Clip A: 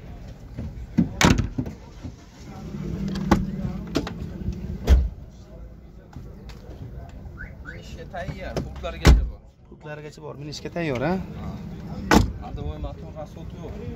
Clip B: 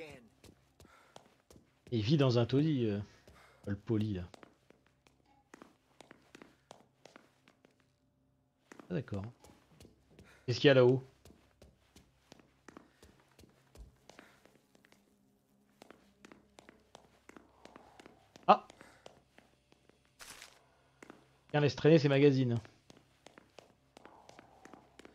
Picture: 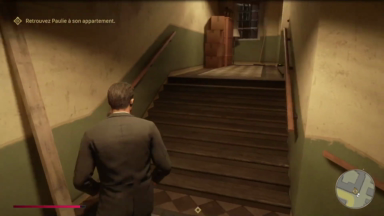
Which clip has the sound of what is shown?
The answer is B